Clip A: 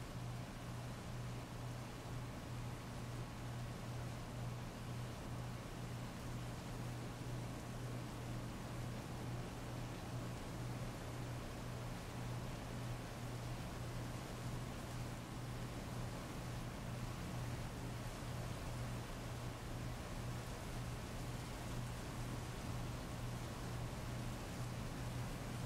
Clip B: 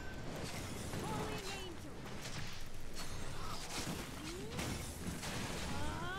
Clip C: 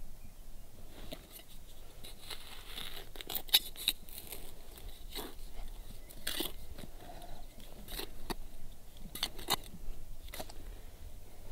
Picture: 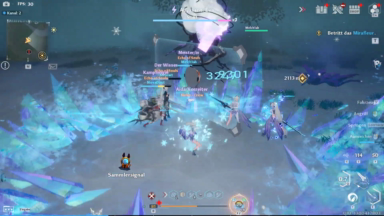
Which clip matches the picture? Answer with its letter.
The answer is B